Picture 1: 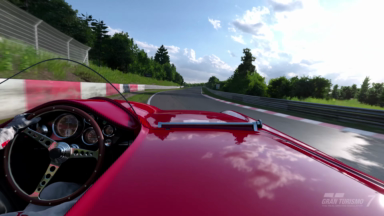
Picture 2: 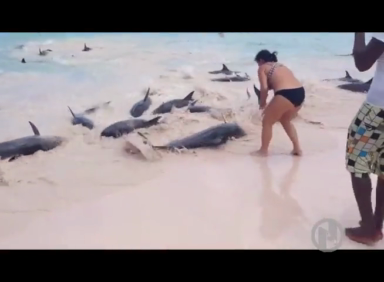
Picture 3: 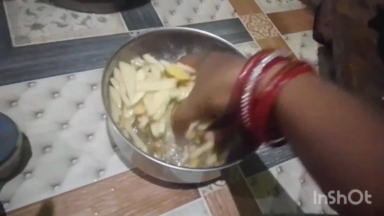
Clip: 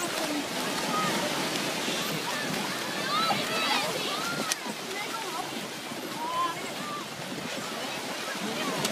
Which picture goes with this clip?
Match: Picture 2